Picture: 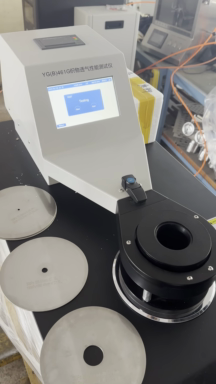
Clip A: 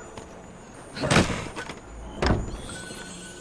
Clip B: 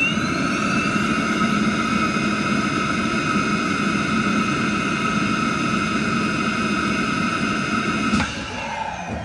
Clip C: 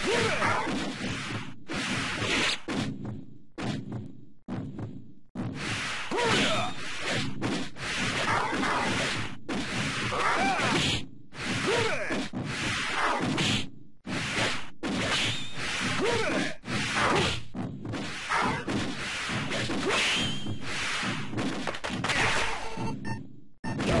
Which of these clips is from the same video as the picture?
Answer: B